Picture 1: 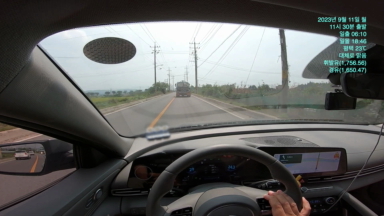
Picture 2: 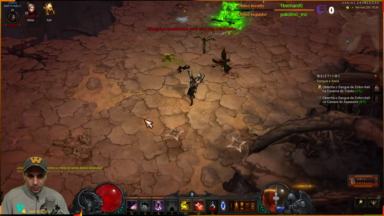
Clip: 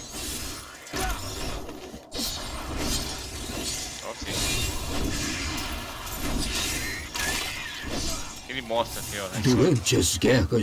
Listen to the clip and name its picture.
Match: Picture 2